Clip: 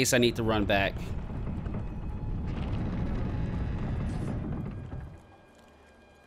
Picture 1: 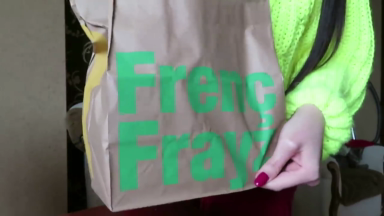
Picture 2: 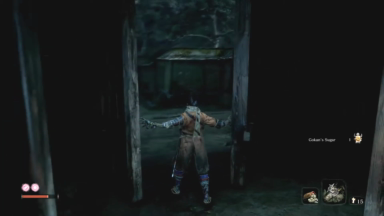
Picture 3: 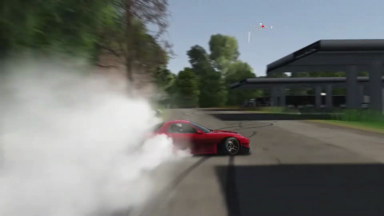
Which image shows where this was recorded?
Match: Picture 2